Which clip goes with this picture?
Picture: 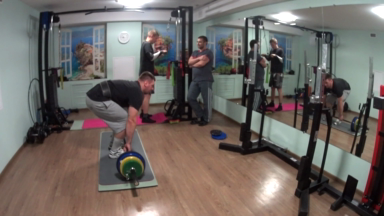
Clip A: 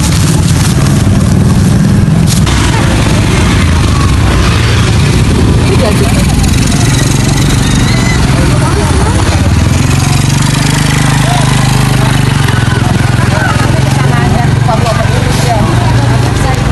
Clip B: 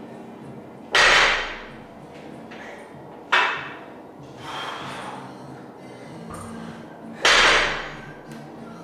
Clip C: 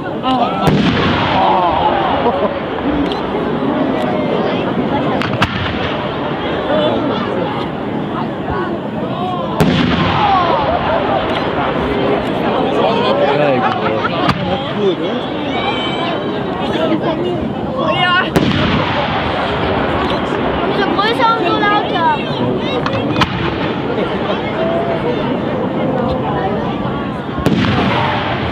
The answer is B